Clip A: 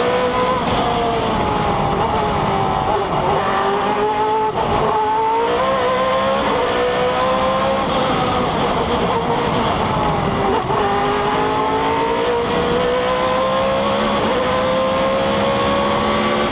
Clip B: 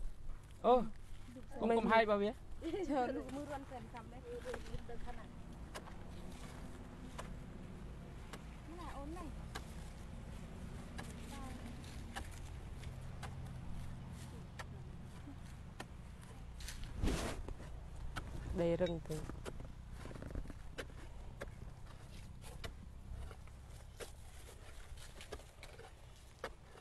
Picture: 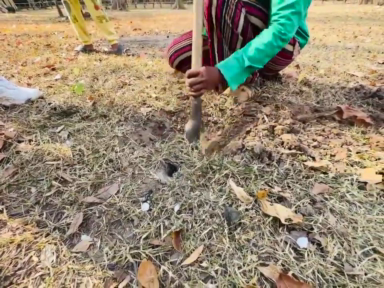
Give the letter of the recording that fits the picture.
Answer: B